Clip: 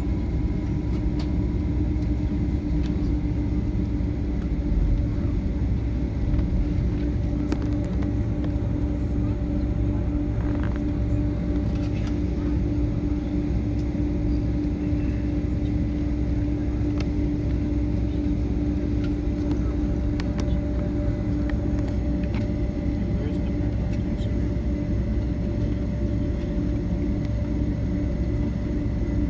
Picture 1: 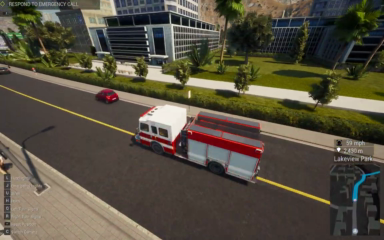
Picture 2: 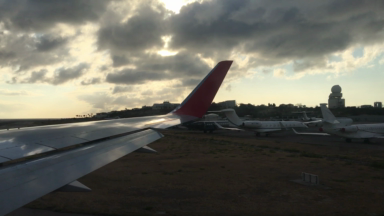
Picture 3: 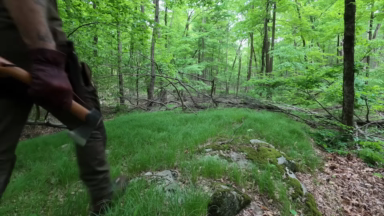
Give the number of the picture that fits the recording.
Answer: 2